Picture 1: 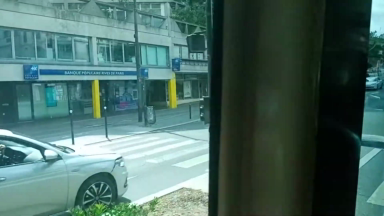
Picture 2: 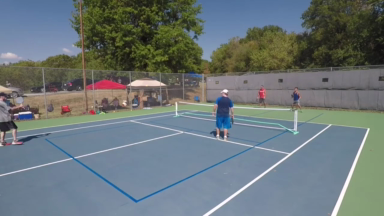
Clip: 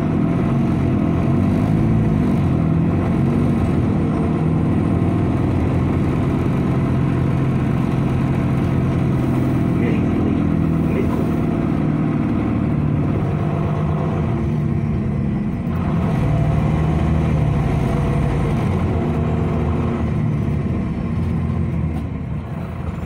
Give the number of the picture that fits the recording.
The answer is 1